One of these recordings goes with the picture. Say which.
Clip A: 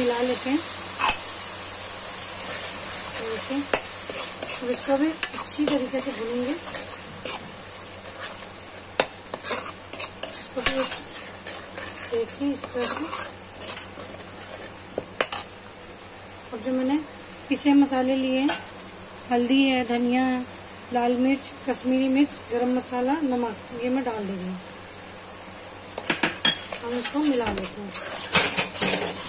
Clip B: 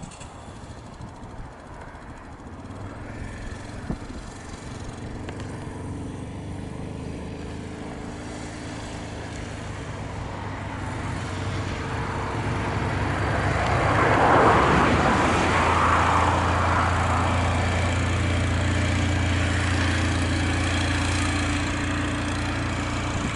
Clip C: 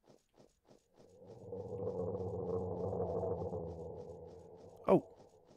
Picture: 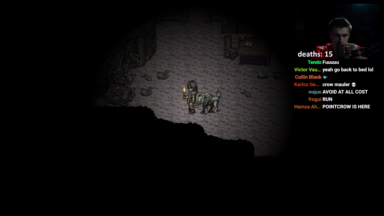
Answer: C